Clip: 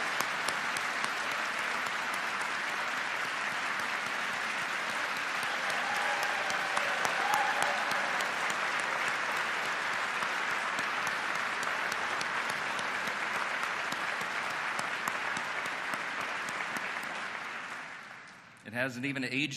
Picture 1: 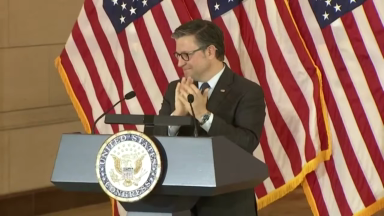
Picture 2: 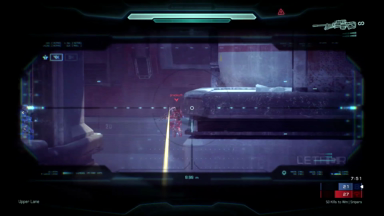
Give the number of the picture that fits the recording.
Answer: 1